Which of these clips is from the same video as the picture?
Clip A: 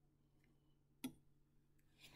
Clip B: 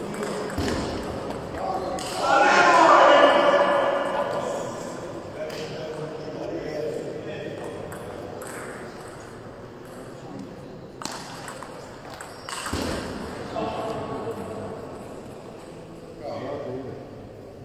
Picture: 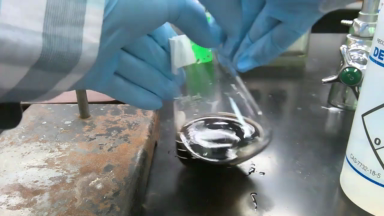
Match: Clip A